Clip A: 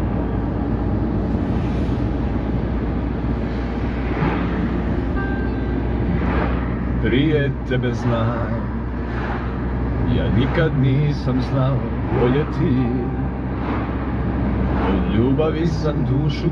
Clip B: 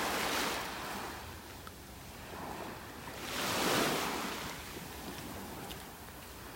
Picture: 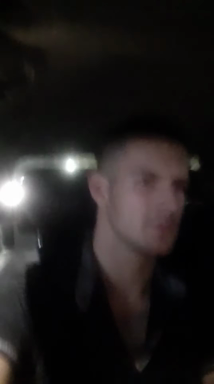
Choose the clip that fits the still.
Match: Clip A